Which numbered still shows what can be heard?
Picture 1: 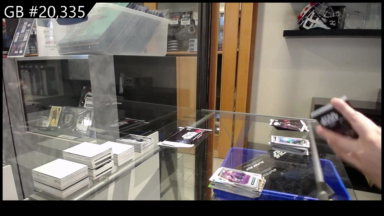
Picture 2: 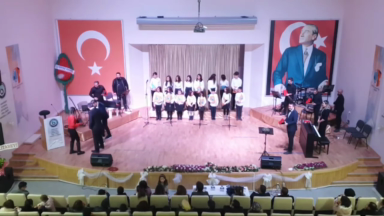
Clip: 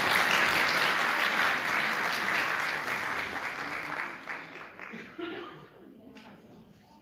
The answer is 2